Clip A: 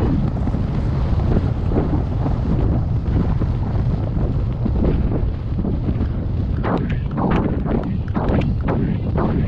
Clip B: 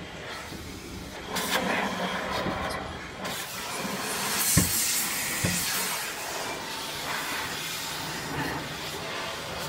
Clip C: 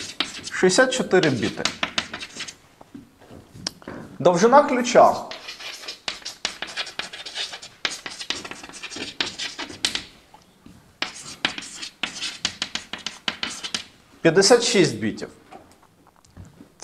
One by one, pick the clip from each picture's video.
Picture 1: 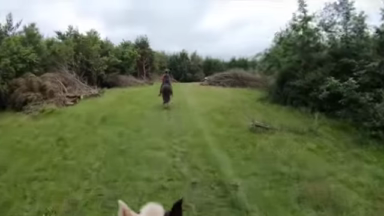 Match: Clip A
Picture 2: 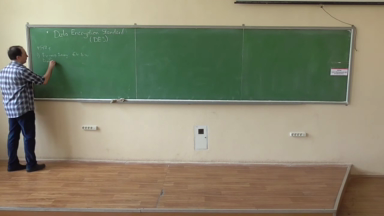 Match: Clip C